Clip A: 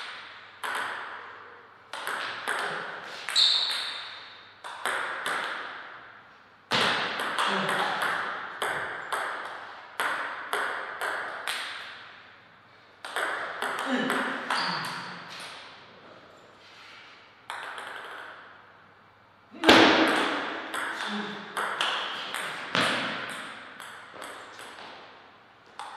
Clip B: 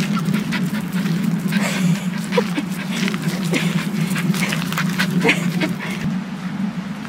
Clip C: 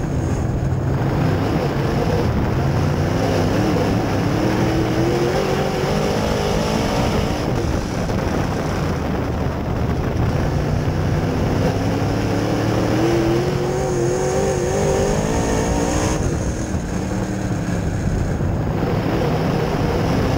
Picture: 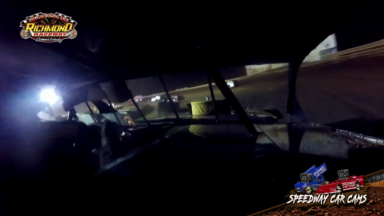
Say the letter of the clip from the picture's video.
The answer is C